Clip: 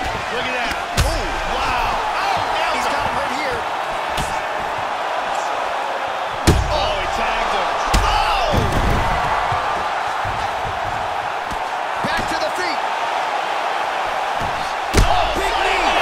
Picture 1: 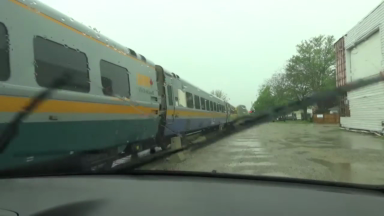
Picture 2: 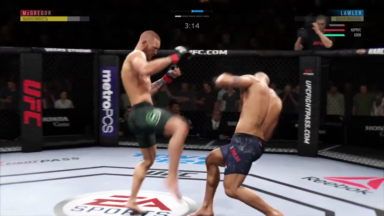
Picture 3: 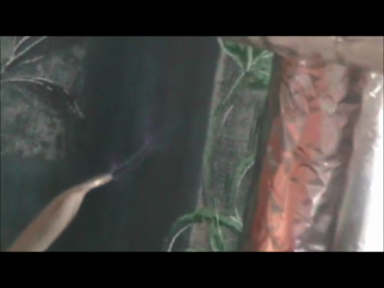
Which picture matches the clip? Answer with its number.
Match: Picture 2